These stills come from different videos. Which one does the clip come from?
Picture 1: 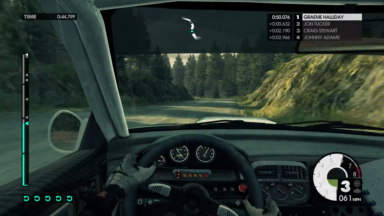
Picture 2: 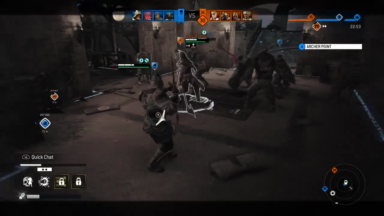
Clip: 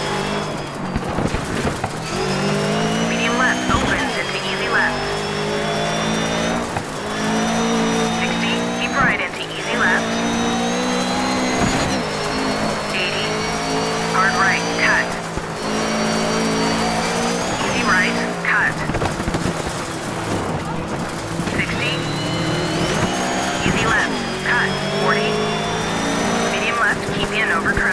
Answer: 1